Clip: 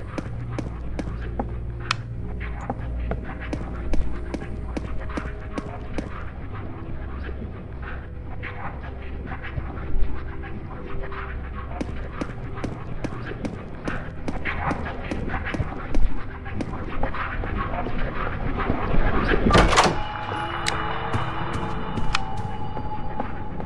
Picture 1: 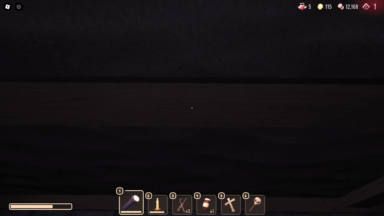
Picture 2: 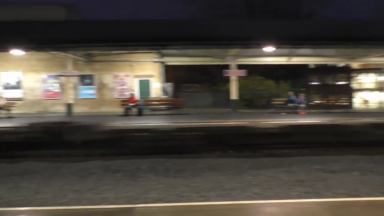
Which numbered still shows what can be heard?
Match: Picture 1